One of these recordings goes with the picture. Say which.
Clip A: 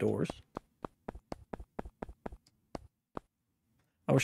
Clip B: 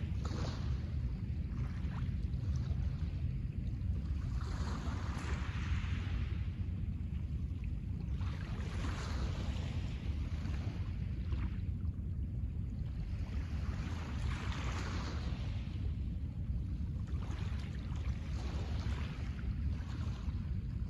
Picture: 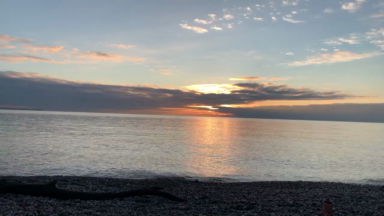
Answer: B